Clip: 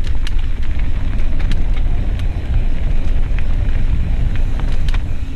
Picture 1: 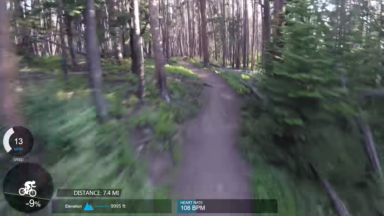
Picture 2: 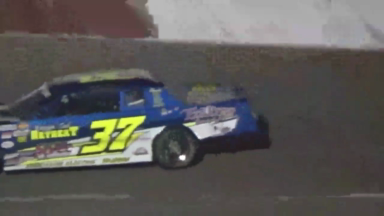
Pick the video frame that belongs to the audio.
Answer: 1